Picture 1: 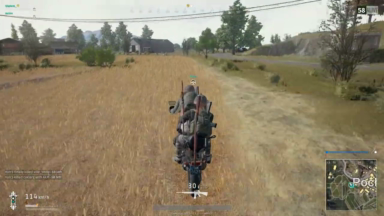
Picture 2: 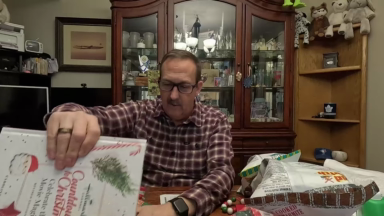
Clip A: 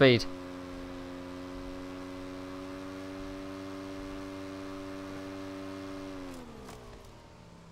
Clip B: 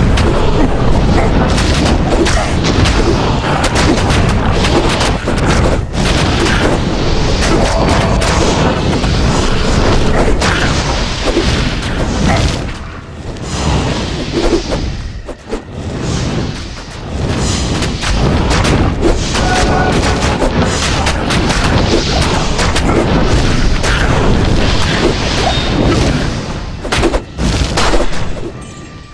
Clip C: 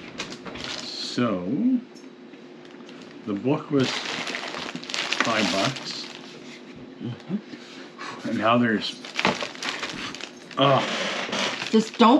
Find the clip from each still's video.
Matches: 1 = A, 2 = C